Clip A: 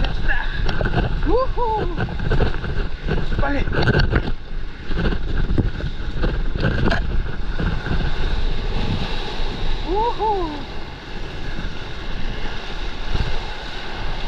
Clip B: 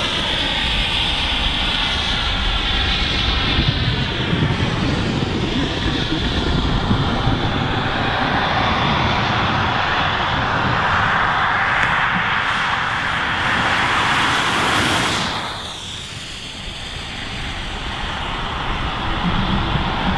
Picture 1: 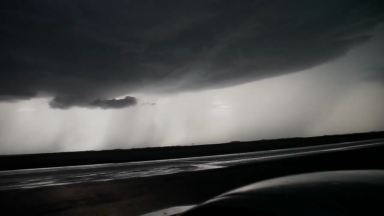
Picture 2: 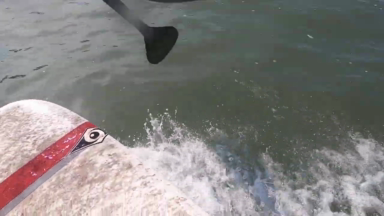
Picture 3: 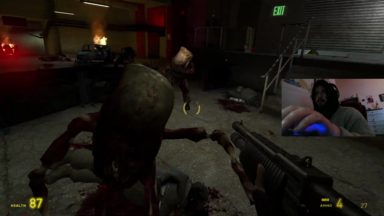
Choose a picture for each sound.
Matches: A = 2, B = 1